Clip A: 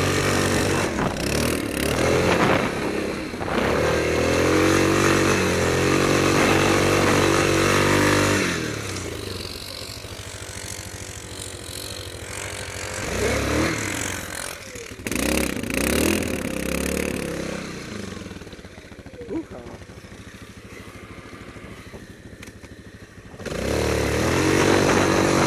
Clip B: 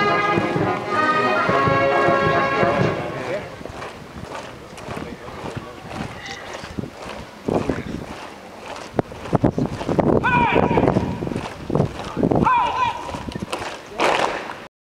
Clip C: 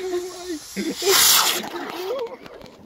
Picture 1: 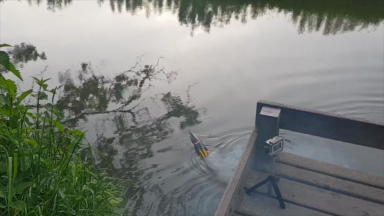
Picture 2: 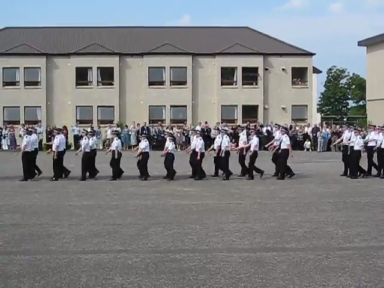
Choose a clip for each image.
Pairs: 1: C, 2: B